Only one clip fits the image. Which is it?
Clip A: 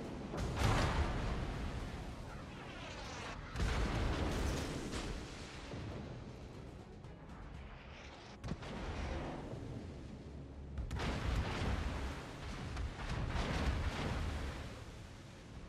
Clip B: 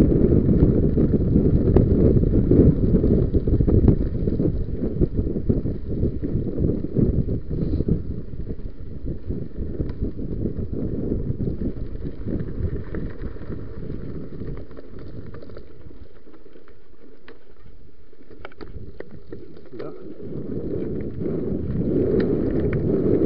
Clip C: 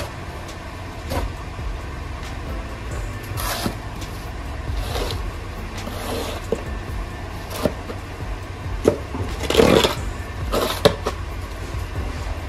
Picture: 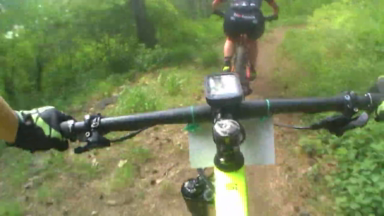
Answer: B